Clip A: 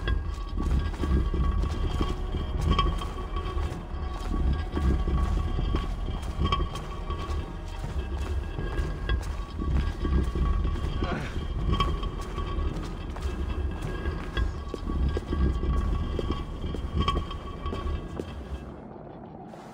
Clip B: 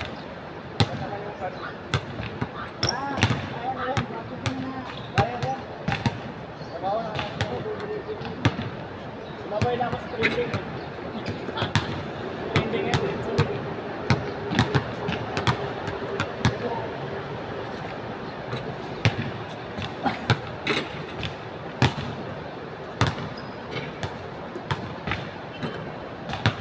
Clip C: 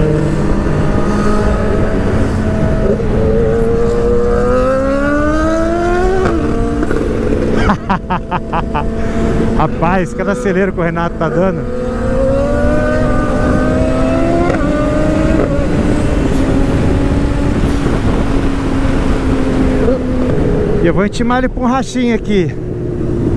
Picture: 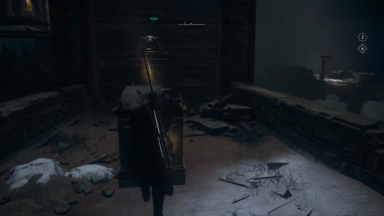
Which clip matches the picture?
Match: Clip A